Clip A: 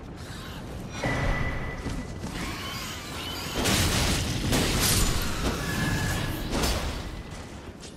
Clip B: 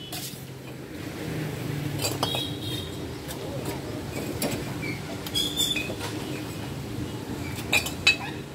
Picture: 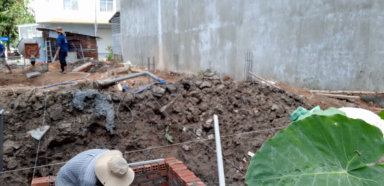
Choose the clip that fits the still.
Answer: B